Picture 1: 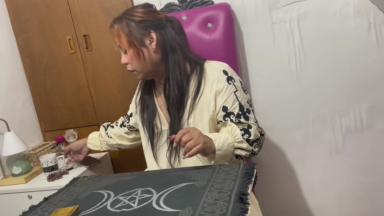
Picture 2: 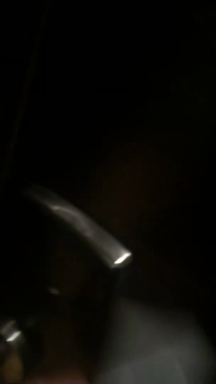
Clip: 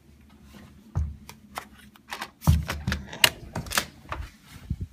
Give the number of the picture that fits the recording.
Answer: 2